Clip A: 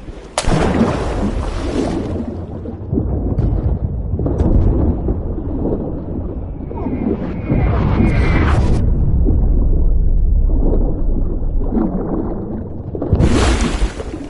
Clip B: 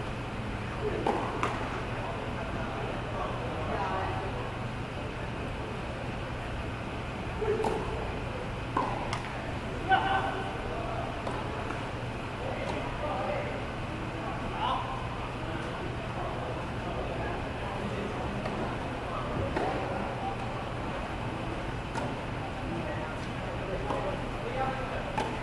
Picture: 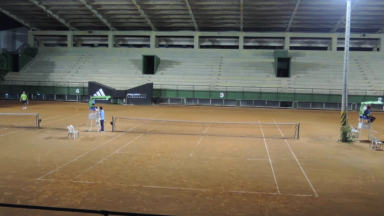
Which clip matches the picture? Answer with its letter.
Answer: B